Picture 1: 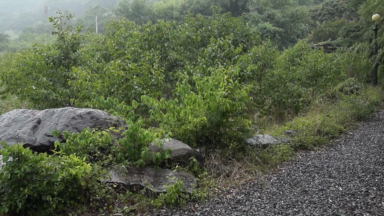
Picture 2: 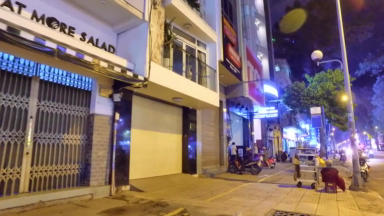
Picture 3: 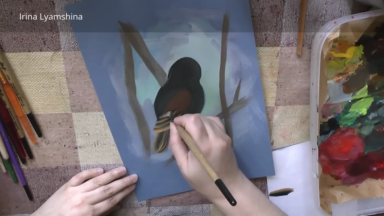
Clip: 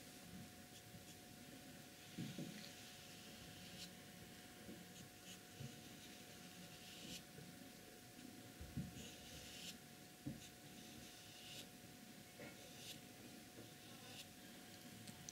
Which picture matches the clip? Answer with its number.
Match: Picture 3